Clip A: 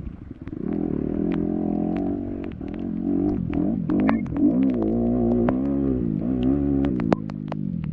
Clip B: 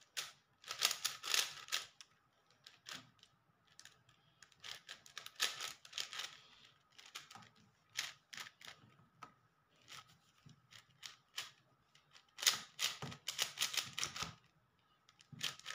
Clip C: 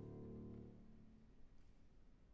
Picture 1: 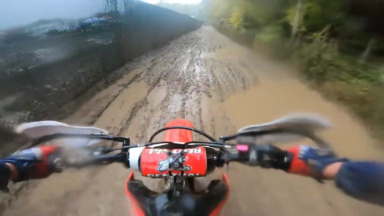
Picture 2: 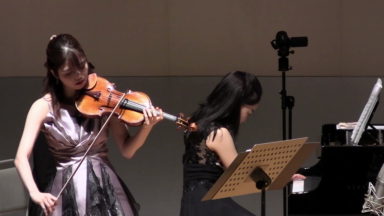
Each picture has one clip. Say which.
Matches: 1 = A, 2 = C